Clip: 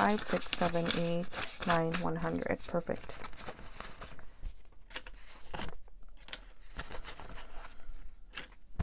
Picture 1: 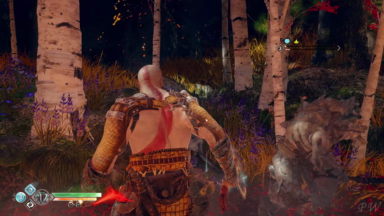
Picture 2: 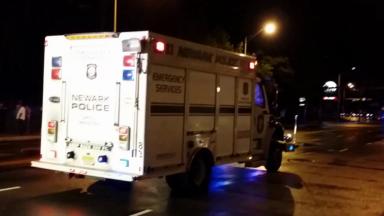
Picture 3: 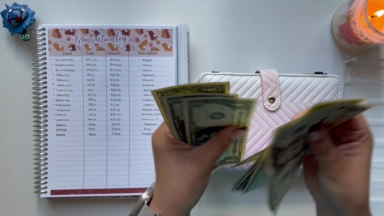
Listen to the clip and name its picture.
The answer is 3